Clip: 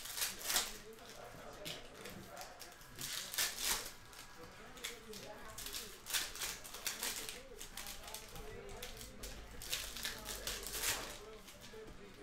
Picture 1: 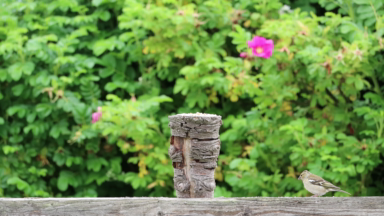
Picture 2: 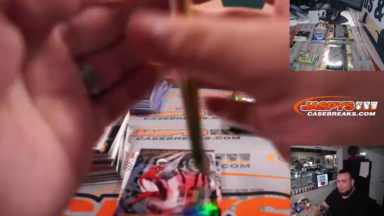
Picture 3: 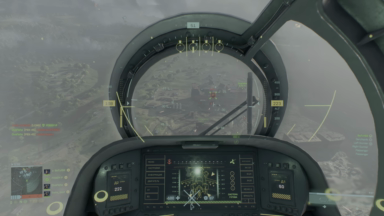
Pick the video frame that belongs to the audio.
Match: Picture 2